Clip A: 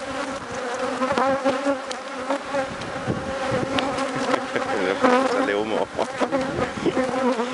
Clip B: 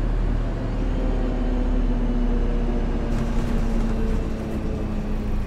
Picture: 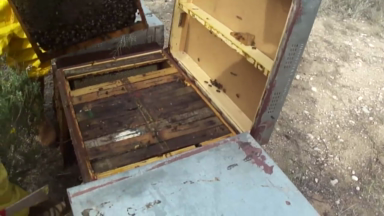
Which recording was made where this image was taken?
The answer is A